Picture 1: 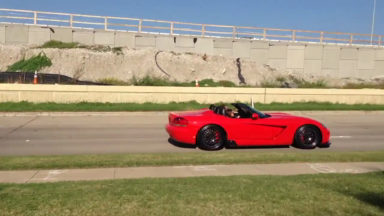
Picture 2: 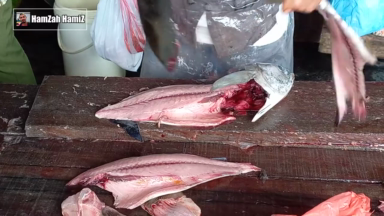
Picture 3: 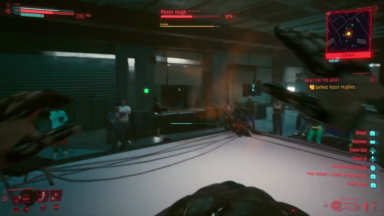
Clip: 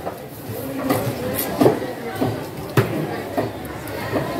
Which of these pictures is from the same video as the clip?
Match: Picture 2